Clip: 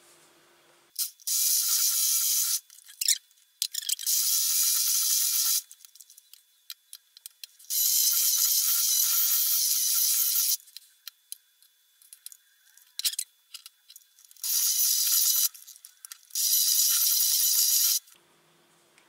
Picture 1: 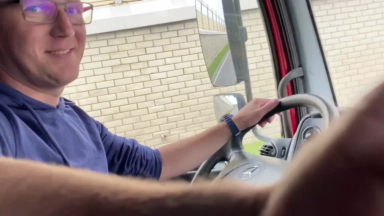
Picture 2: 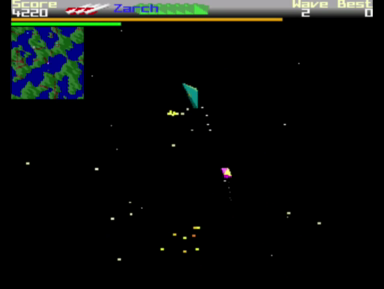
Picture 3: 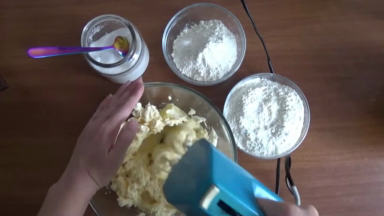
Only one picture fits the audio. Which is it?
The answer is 3